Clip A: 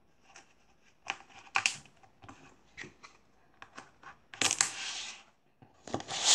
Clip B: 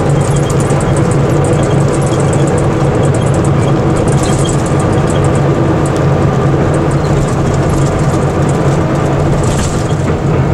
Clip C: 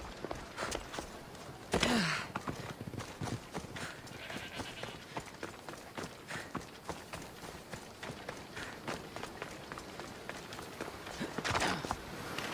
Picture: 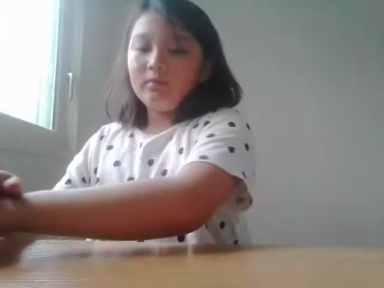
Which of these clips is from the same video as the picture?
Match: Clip A